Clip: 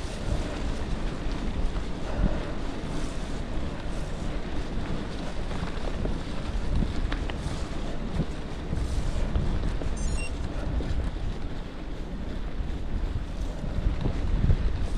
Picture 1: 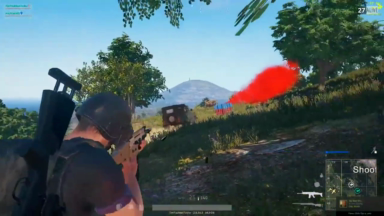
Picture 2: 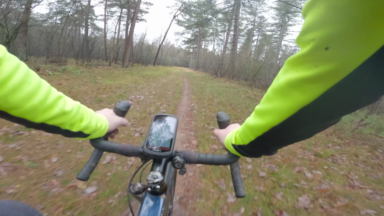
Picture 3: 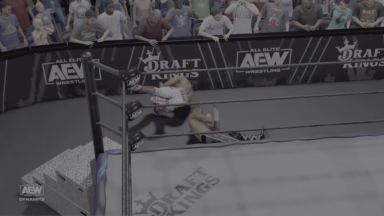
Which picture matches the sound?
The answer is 2